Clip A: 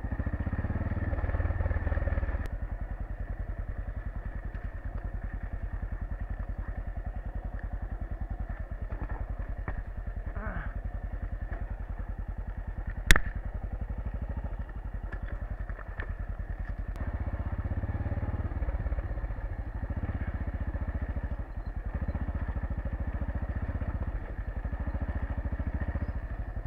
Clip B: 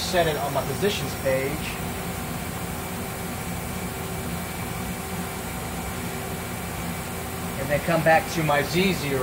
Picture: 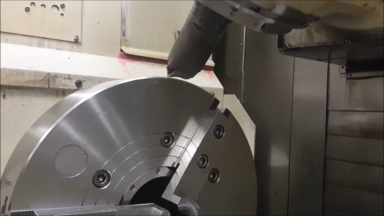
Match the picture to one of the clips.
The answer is B